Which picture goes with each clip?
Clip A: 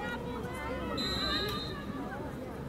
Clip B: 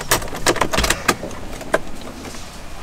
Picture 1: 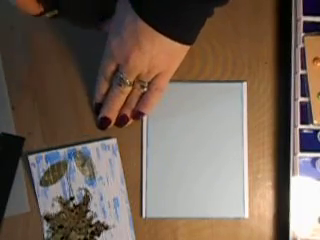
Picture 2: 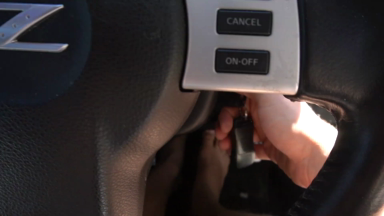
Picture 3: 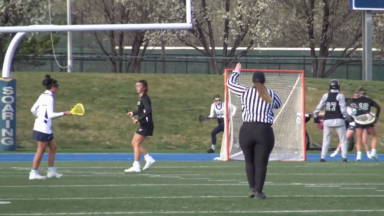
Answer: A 3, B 2